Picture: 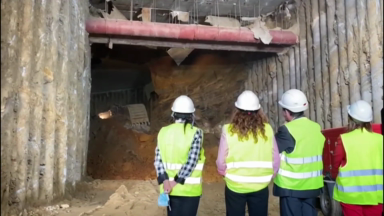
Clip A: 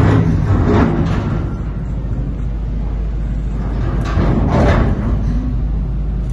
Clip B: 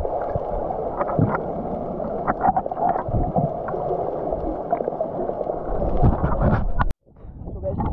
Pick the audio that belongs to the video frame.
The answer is A